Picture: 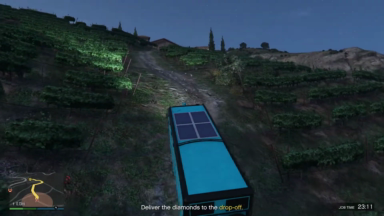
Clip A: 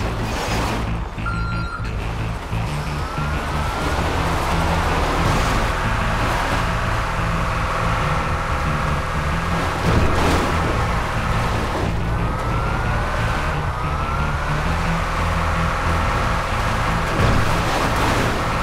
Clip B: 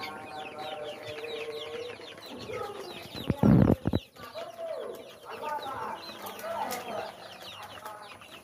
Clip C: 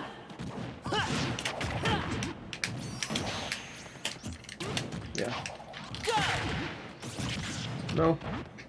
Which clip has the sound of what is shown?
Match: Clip A